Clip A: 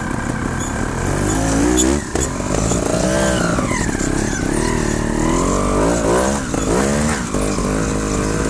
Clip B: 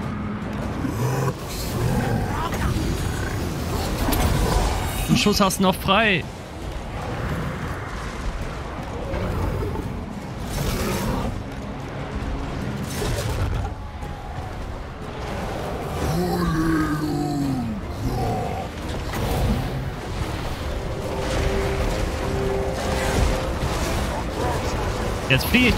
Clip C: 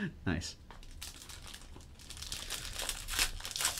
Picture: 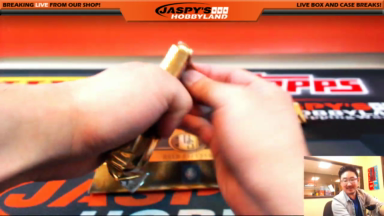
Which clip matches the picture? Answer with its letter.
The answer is C